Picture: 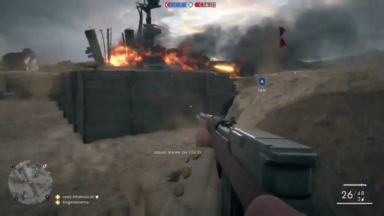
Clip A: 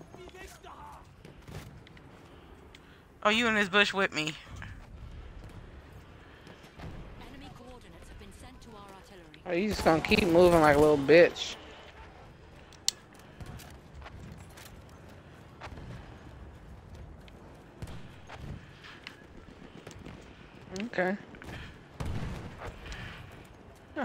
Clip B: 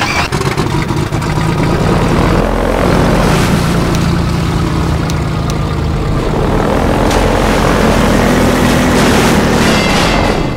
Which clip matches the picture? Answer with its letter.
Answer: A